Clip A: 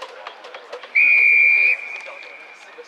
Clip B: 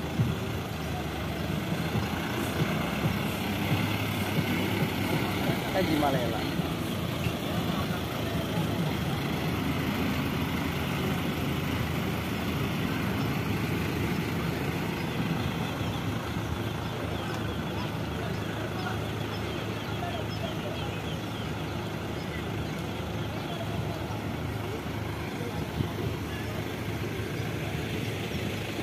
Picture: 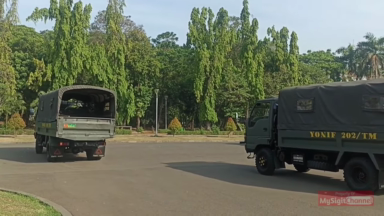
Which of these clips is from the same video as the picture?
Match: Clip B